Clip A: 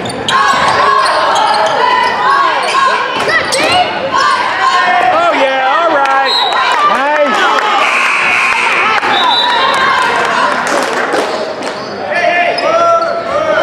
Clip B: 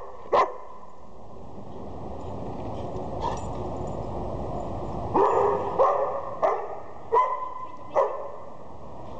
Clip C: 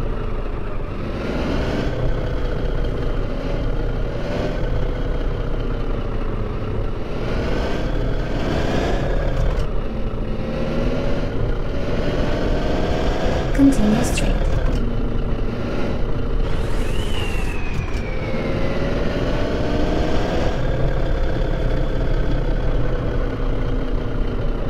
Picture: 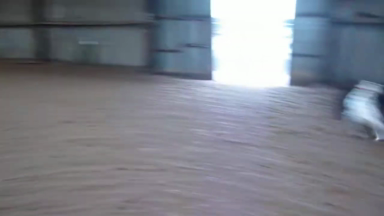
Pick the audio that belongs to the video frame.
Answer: B